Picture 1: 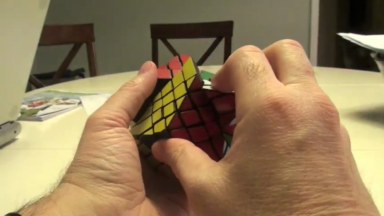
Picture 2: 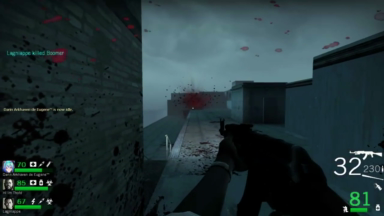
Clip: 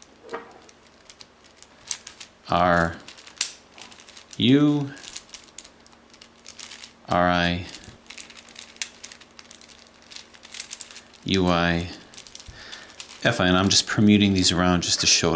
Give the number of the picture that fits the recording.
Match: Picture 1